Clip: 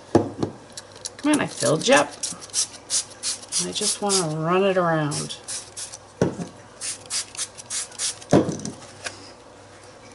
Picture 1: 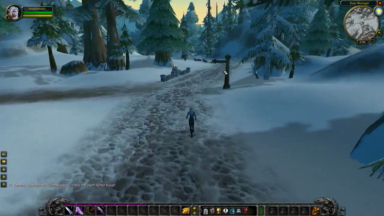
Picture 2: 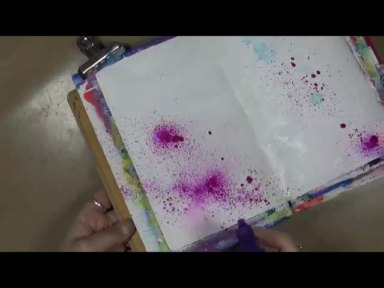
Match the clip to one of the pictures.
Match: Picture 2